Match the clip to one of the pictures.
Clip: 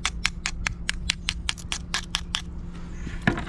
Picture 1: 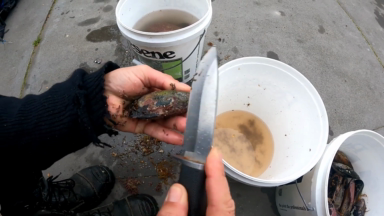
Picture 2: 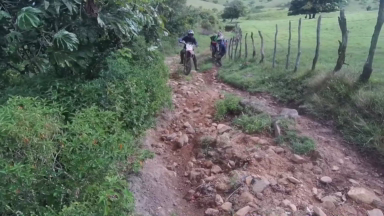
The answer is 1